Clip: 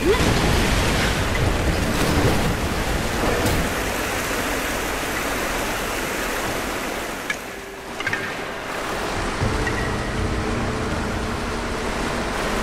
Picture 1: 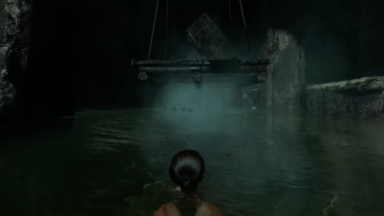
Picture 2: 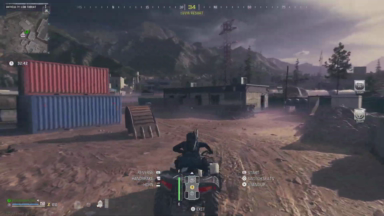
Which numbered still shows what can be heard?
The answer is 1